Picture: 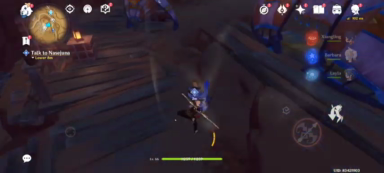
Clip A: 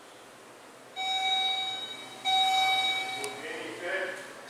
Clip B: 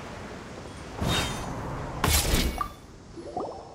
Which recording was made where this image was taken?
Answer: B